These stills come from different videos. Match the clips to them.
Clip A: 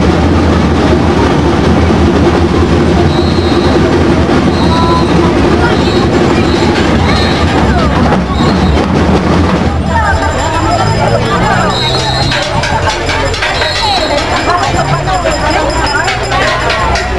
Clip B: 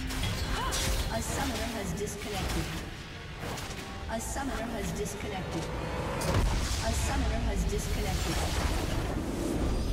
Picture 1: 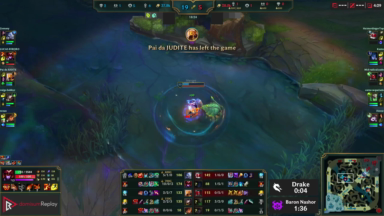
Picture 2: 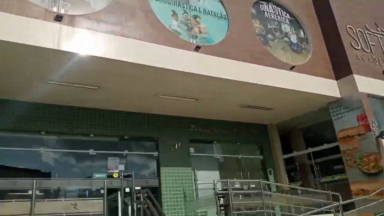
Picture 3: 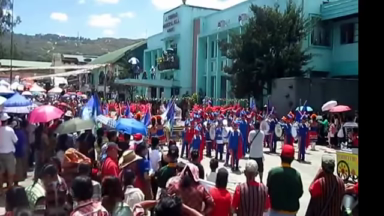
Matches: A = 3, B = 1